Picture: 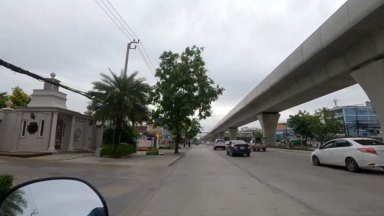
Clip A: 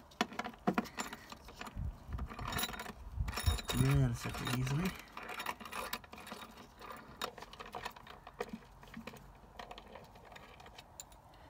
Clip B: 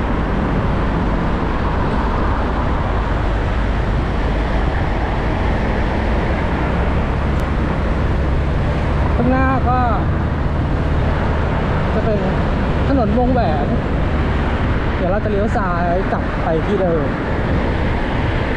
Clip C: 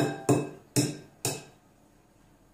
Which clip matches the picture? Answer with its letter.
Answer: B